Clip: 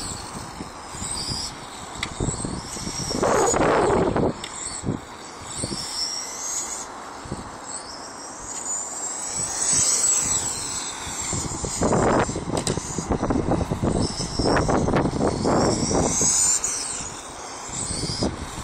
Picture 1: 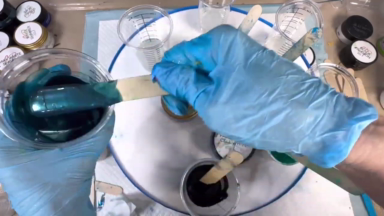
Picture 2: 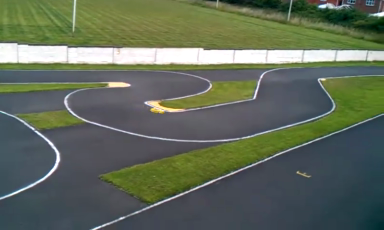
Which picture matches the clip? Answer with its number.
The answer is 2